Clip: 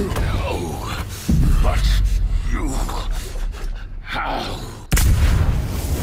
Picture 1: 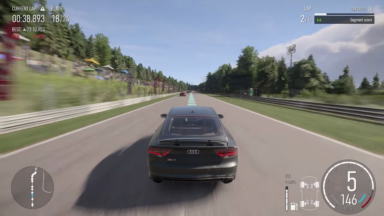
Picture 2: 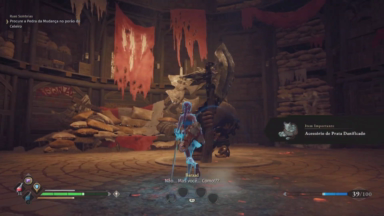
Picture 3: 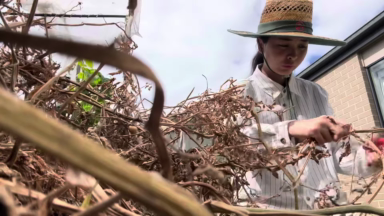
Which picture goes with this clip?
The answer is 2